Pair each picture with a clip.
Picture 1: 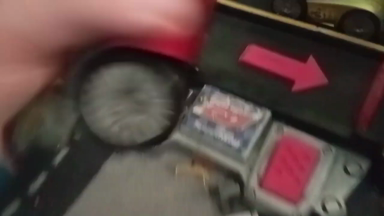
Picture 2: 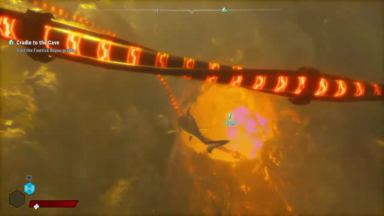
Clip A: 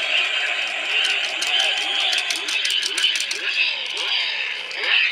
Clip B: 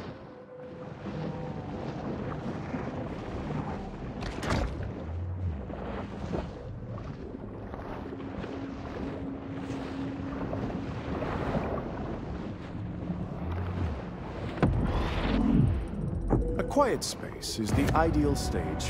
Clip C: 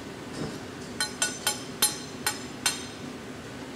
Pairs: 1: A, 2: B